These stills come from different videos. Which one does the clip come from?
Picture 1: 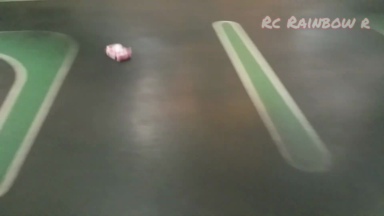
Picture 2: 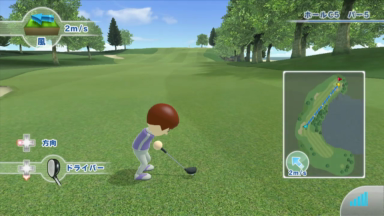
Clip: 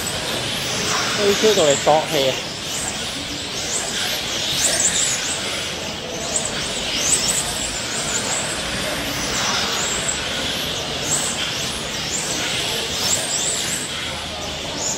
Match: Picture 1